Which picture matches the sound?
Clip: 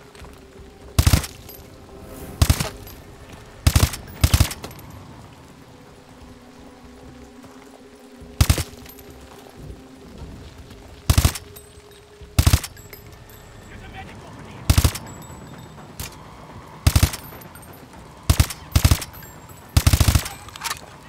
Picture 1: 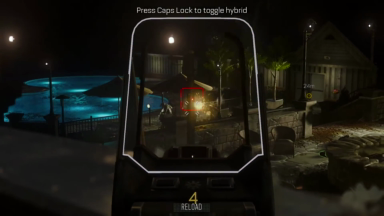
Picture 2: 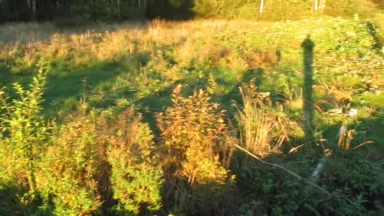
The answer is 1